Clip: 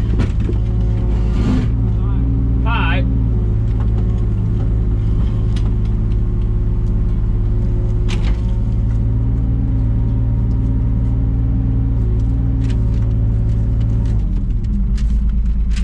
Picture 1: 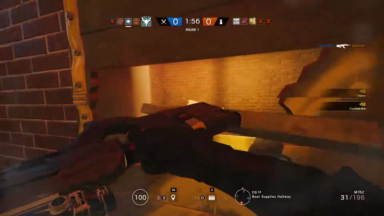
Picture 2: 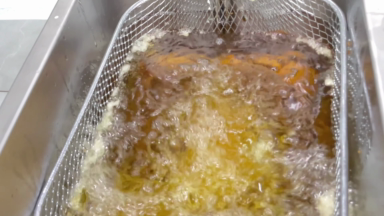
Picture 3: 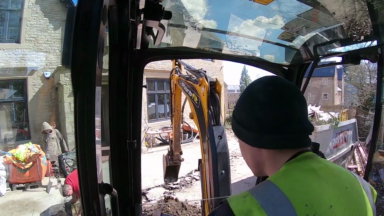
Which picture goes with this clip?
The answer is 3